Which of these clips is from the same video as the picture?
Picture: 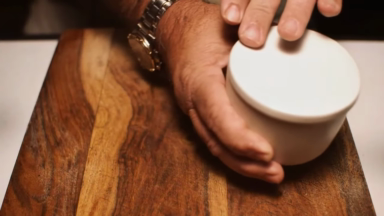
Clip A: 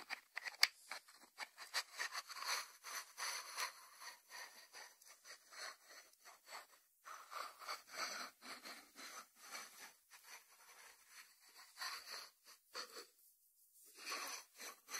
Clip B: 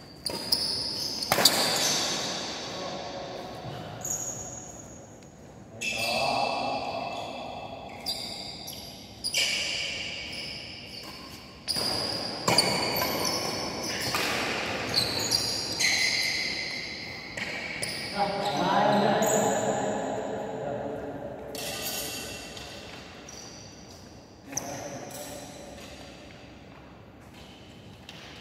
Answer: A